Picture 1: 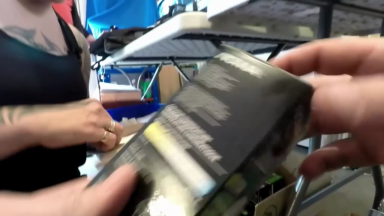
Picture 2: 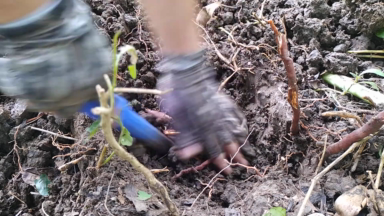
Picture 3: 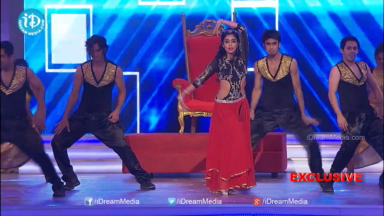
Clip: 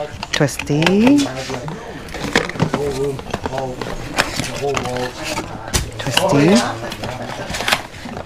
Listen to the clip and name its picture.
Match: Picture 1